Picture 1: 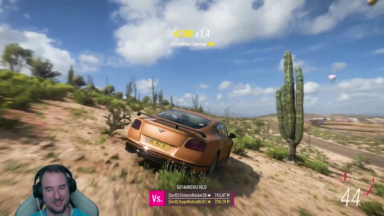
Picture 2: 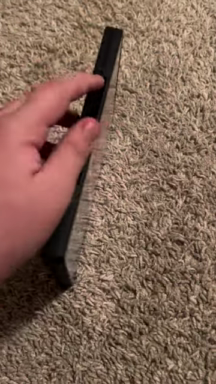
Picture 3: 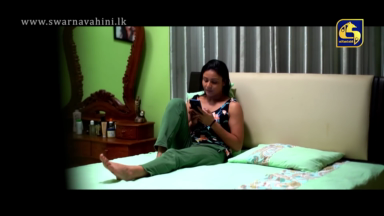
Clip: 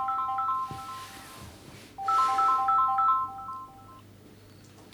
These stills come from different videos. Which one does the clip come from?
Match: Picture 3